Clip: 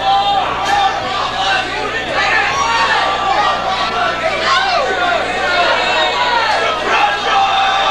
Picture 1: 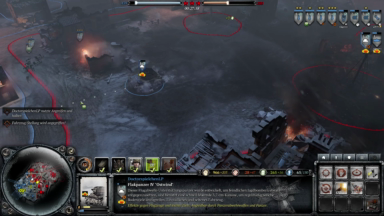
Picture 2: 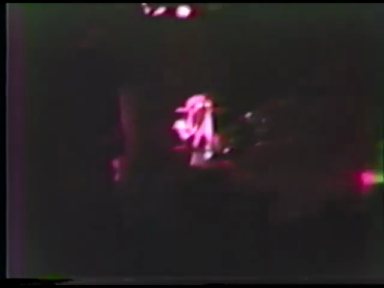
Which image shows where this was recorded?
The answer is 2